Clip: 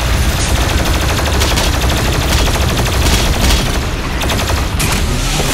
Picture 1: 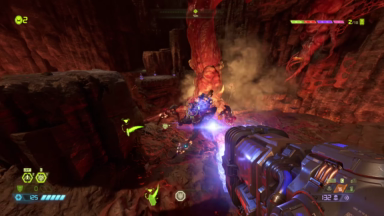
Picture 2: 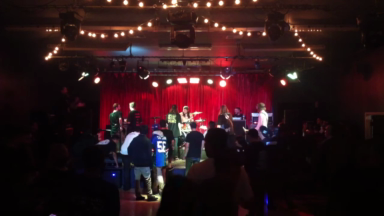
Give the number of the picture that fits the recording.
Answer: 1